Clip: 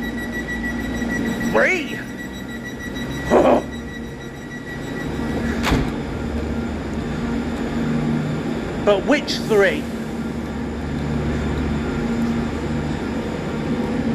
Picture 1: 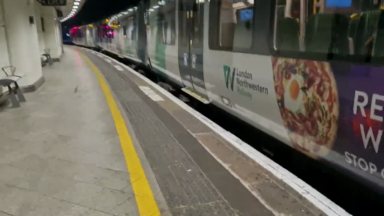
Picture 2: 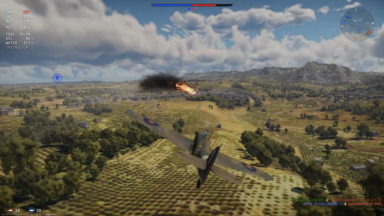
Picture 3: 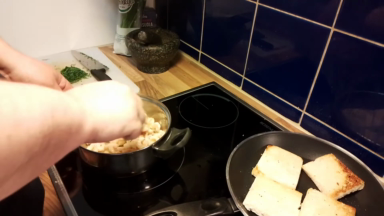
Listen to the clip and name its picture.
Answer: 1